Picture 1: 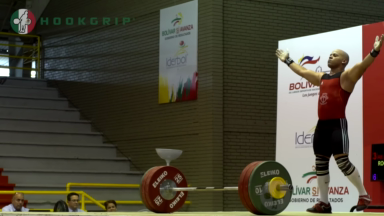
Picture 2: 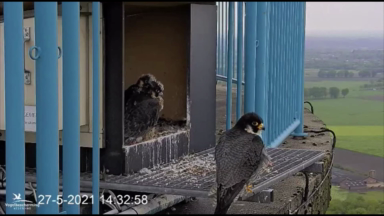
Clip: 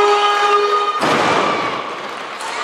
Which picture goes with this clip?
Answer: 1